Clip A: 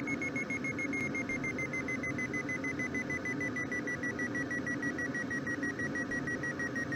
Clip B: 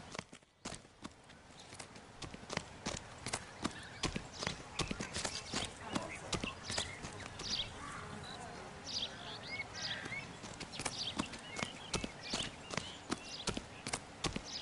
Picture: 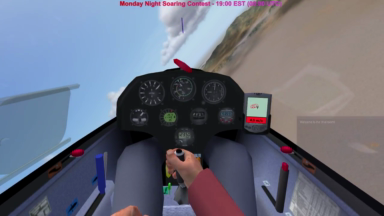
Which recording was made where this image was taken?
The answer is A